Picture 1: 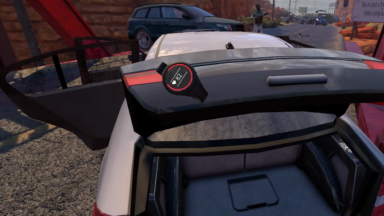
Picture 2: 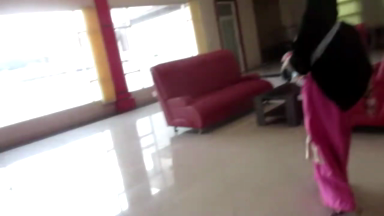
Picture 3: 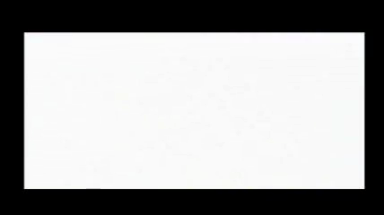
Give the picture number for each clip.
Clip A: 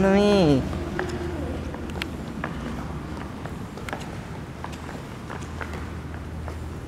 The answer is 2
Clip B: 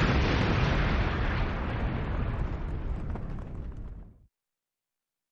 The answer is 3